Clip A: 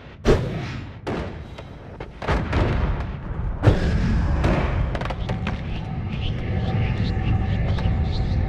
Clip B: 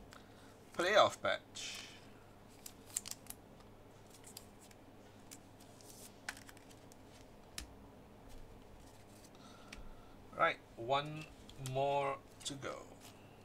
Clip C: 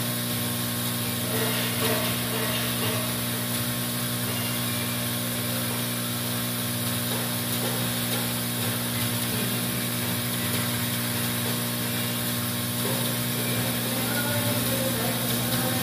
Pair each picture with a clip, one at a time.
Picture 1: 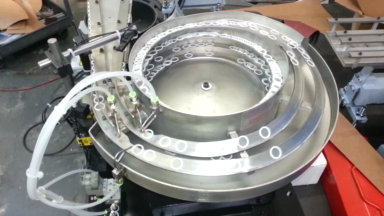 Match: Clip C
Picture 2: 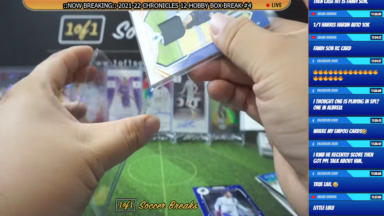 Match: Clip B